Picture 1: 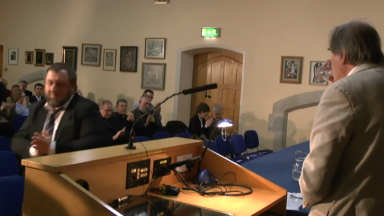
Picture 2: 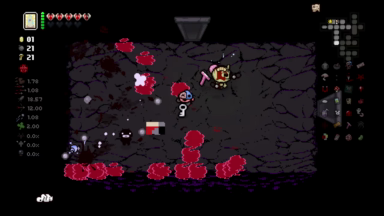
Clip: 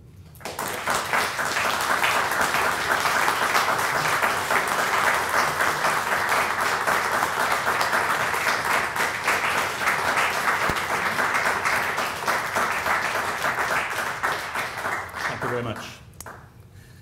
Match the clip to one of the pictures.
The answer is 1